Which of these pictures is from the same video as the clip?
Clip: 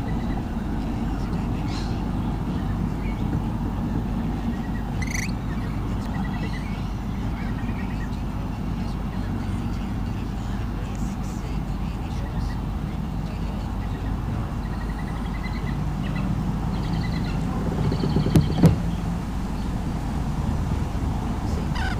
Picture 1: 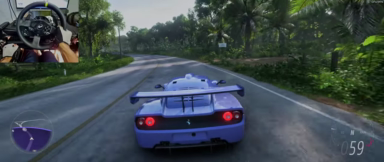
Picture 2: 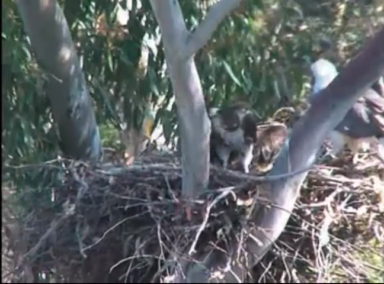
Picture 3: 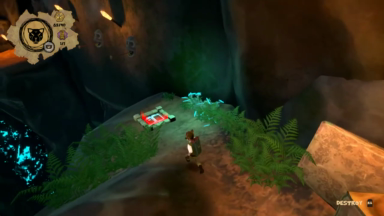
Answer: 2